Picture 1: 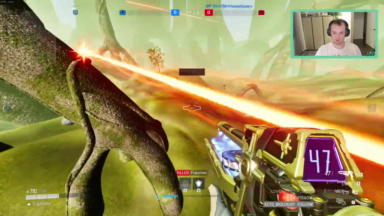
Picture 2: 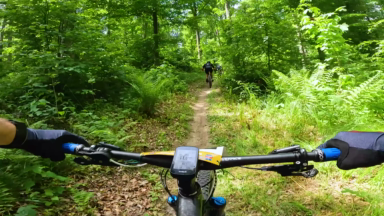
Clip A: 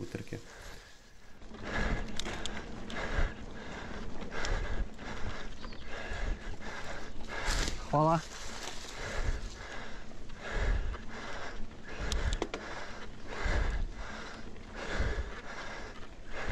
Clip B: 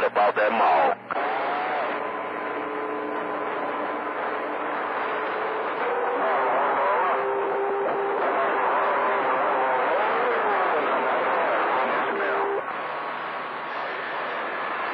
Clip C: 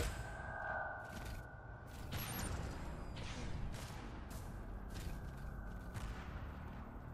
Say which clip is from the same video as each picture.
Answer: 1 C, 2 A